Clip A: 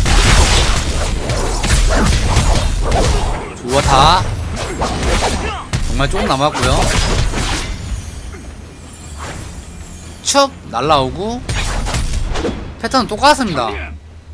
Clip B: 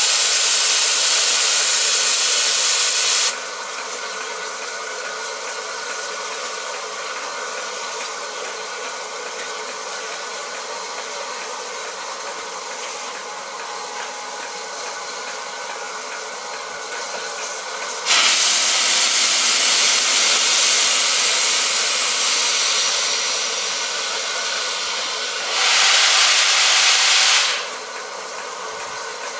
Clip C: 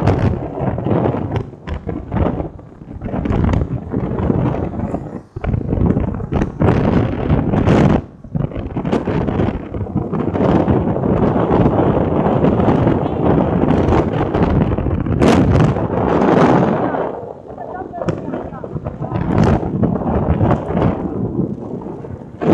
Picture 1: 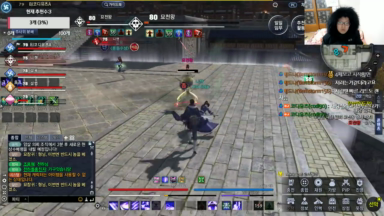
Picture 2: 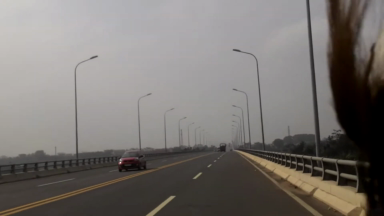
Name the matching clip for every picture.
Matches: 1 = A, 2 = C